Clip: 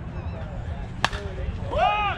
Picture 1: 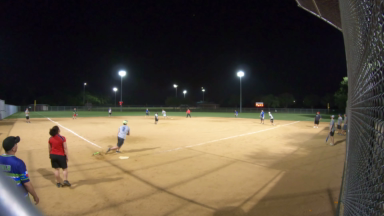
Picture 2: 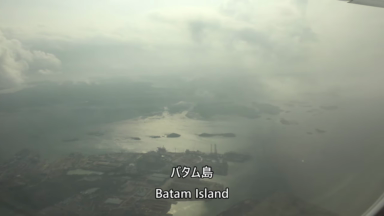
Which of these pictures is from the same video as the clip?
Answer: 1